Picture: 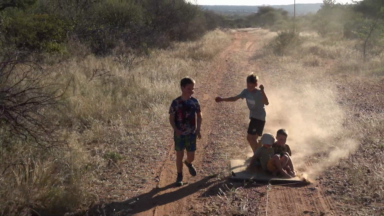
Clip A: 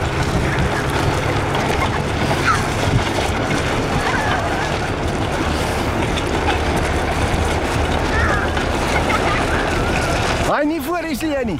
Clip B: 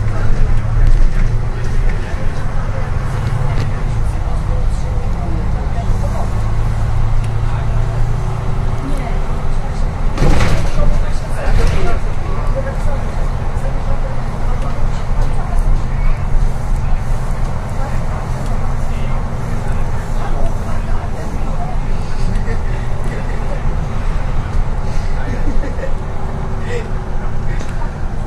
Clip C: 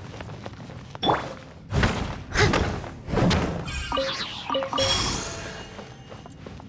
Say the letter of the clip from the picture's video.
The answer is A